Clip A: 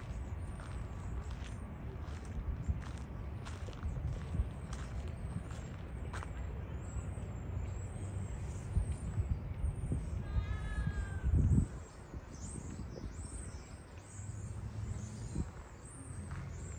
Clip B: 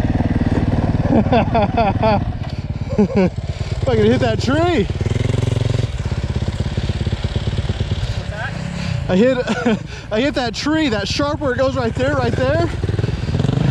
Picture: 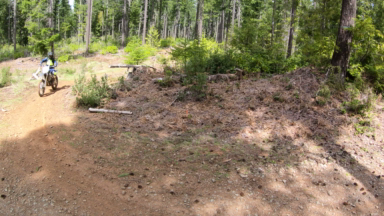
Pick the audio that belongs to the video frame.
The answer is B